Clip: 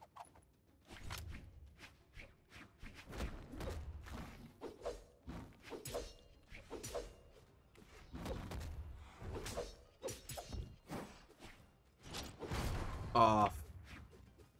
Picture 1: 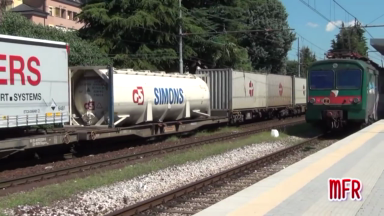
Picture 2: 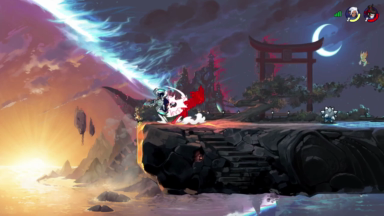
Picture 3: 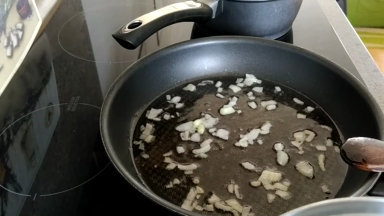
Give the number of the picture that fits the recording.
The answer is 2